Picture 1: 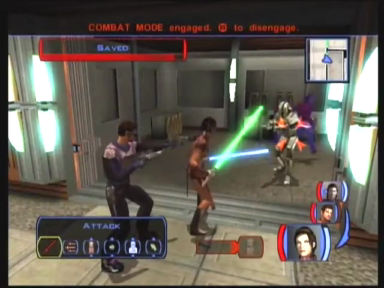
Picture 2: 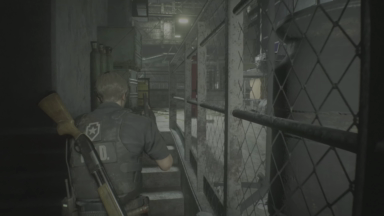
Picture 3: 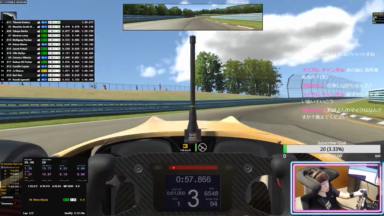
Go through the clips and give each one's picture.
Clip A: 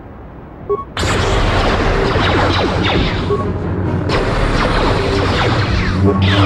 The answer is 1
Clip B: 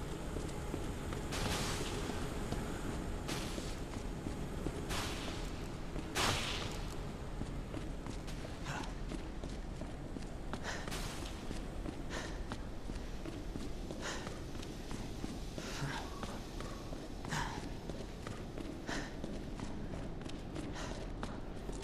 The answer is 2